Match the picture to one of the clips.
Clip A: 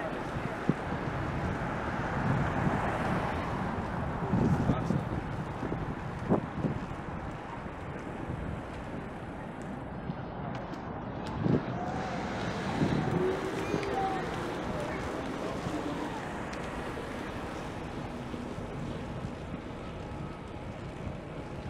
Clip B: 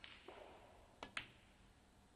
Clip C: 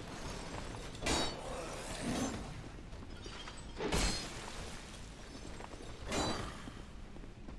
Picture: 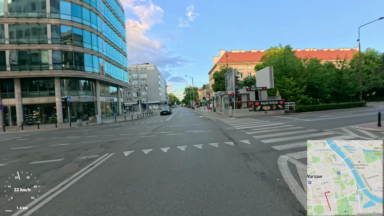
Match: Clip A